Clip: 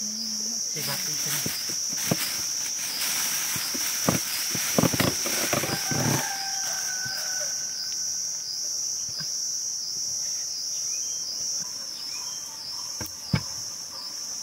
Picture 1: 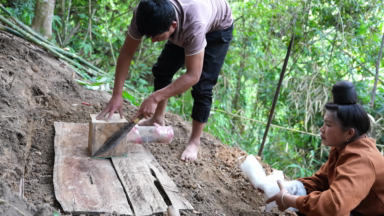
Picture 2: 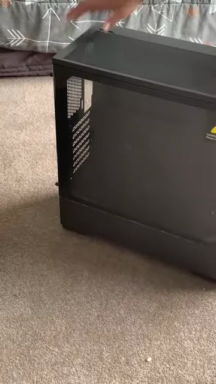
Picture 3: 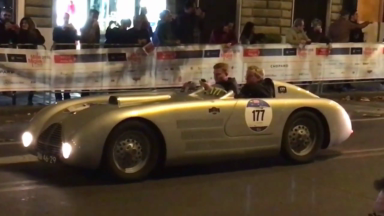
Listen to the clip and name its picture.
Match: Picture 1